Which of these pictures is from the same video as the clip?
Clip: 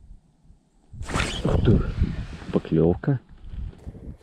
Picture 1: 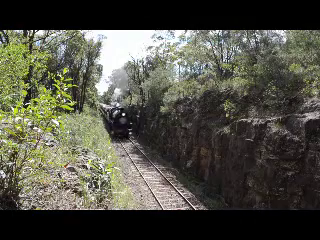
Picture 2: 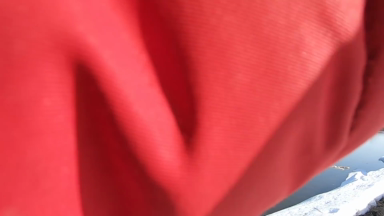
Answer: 2